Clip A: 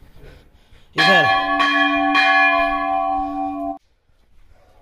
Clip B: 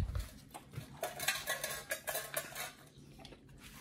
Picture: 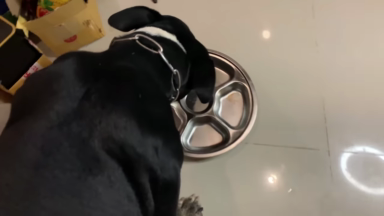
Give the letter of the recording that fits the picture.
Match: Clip B